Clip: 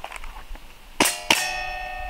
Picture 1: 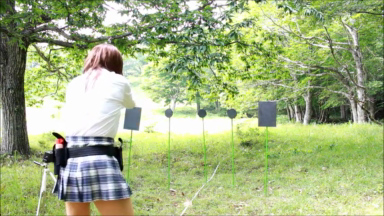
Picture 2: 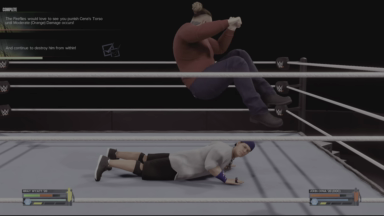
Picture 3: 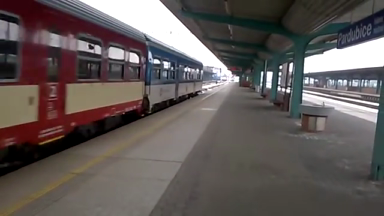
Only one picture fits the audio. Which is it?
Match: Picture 1